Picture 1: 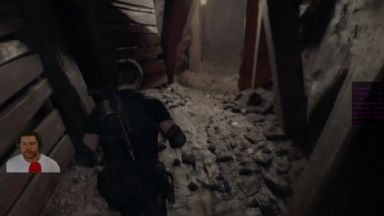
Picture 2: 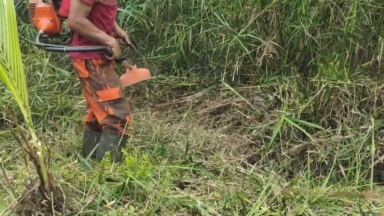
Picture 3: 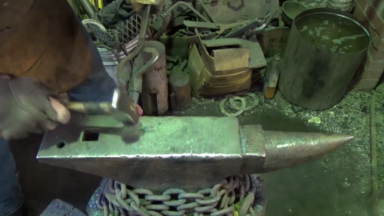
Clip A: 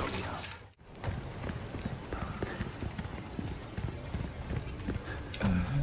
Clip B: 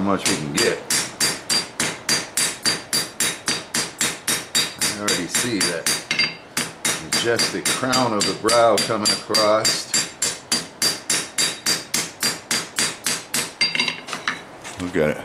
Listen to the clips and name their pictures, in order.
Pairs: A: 1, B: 3